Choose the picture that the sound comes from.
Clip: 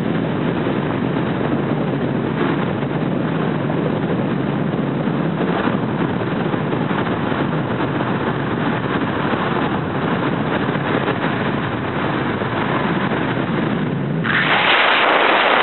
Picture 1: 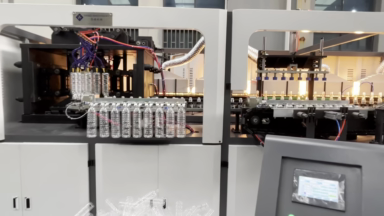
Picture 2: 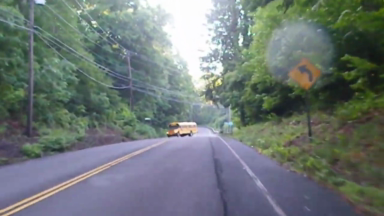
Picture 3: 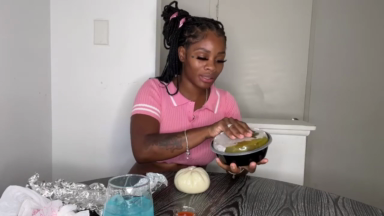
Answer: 2